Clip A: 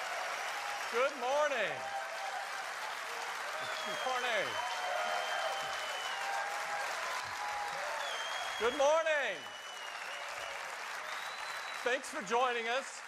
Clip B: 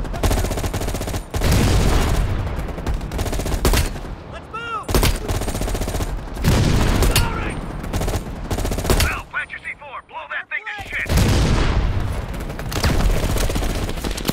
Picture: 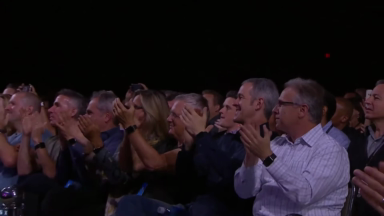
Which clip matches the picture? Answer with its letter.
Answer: A